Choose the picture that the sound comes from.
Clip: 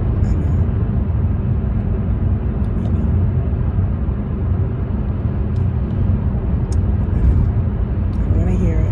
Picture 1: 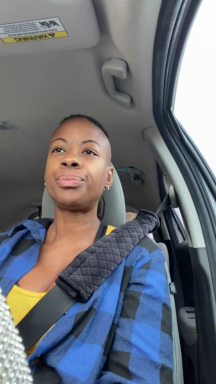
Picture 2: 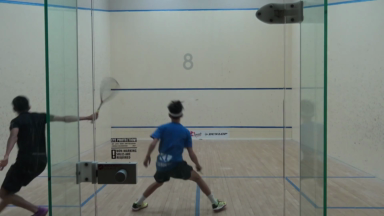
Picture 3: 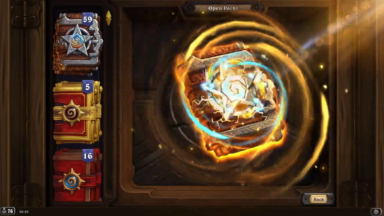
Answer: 1